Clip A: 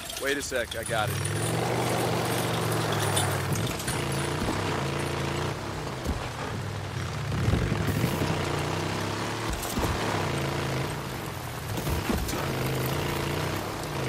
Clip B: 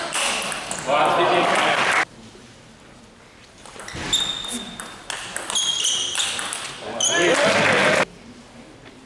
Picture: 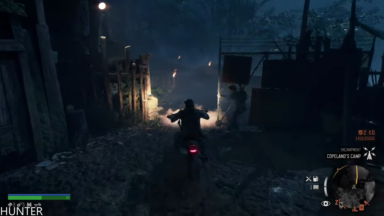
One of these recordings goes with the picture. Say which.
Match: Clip A